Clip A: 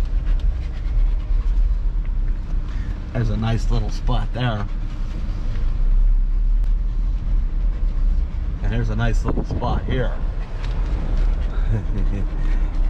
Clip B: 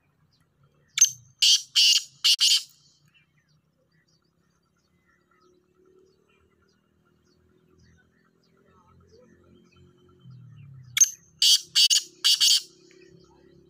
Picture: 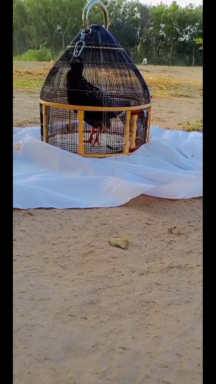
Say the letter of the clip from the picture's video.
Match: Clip B